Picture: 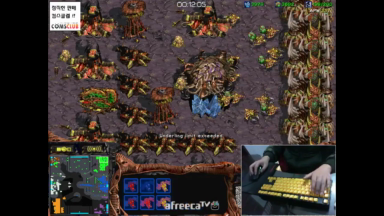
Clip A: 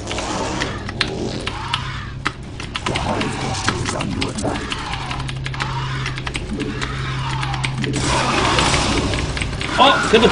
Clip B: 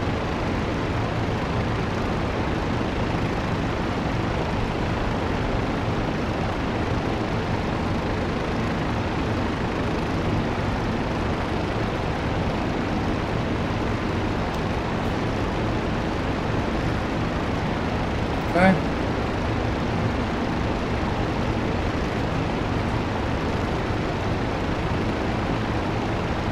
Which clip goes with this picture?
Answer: A